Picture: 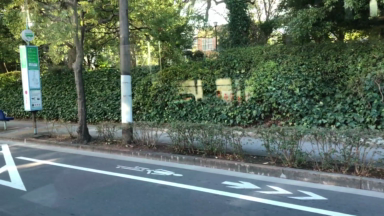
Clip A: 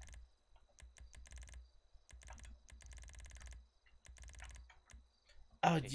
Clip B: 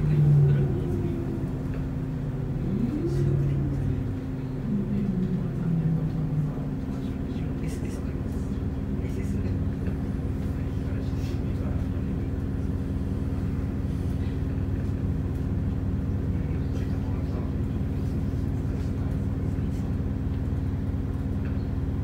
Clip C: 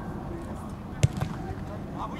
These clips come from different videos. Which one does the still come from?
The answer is B